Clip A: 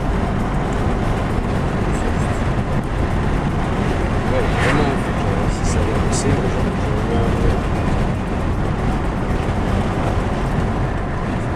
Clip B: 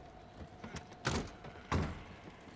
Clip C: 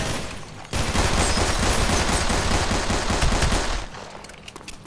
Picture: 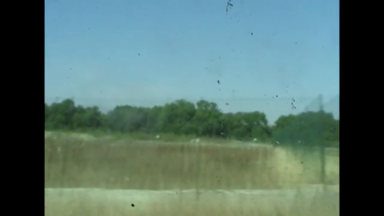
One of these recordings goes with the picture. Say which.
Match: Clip A